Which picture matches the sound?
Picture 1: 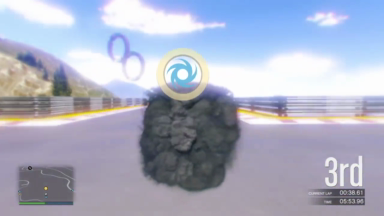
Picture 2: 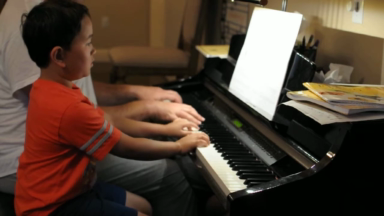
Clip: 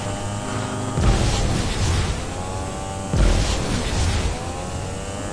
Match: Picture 1